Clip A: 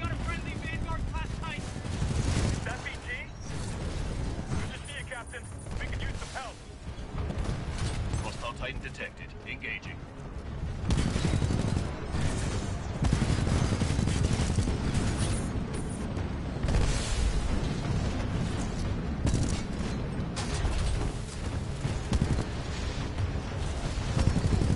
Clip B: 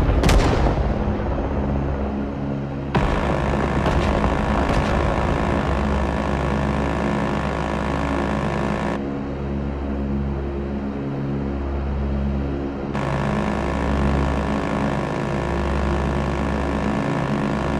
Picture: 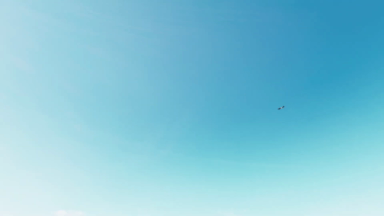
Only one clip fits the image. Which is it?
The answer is B